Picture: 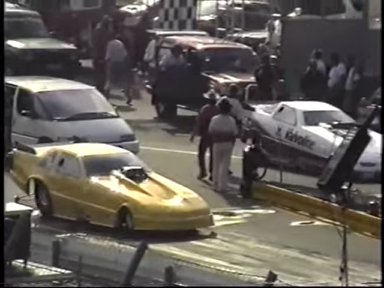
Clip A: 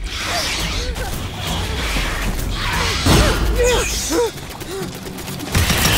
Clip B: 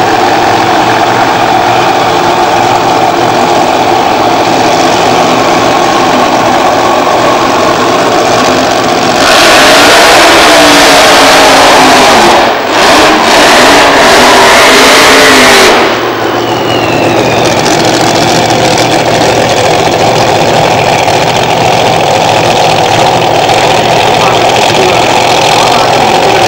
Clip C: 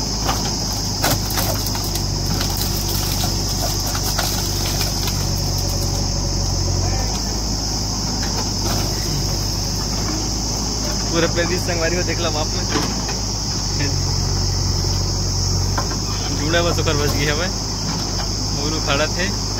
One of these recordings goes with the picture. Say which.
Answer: B